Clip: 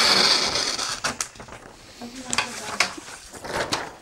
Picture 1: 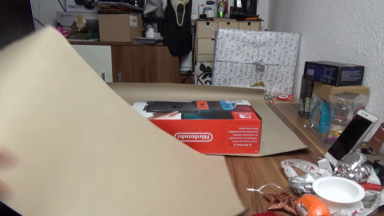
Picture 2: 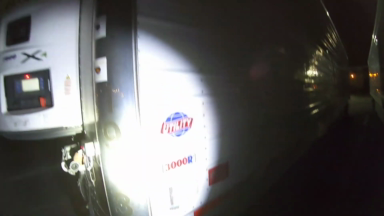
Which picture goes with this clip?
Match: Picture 1